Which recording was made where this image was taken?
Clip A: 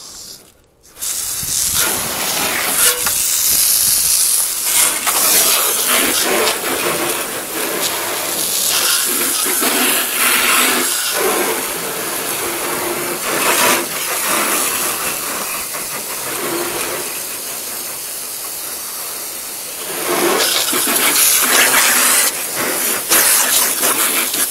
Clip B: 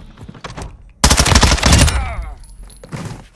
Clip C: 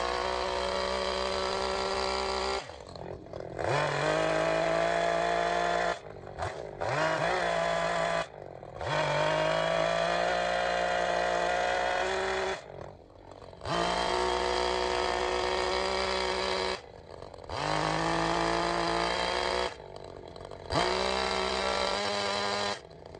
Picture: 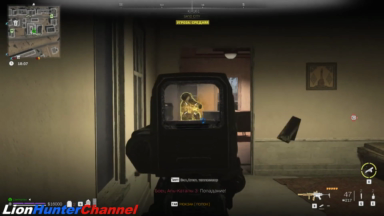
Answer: B